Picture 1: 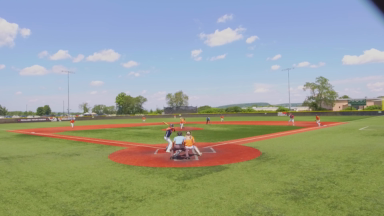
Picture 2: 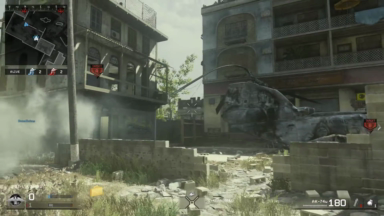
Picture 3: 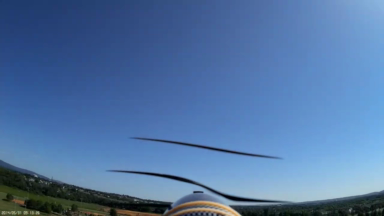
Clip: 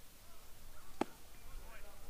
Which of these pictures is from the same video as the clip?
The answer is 1